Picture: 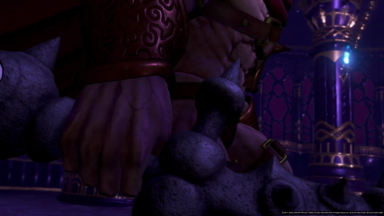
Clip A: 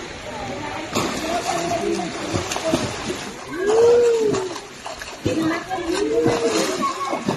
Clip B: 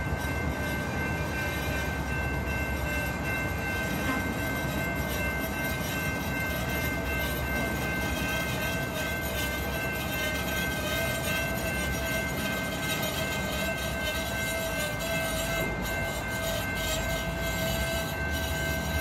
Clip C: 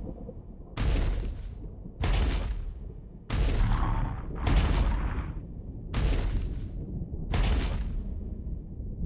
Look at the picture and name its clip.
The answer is C